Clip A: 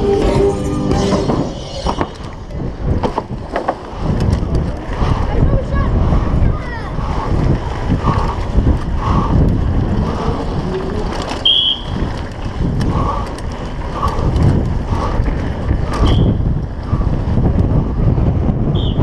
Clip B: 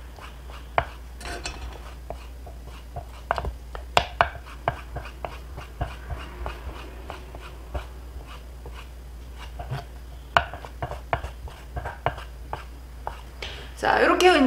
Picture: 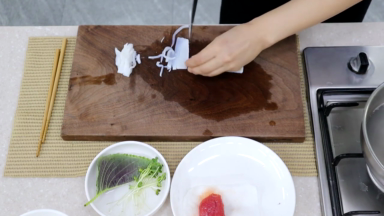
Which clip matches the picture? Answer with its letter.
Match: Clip B